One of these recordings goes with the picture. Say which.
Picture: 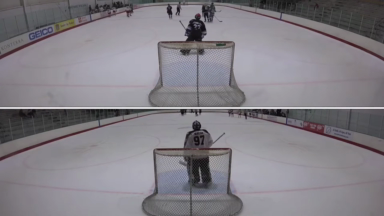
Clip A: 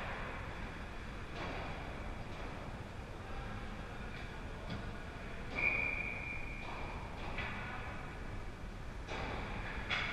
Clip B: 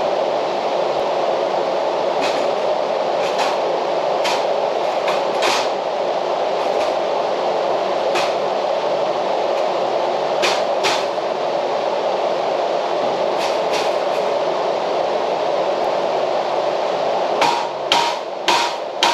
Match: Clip A